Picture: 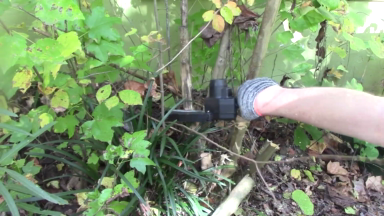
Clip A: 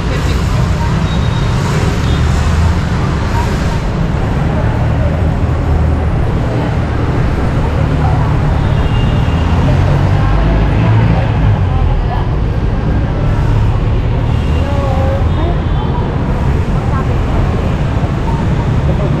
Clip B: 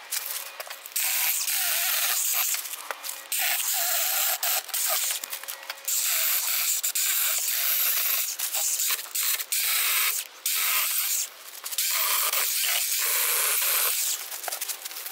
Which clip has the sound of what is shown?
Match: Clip B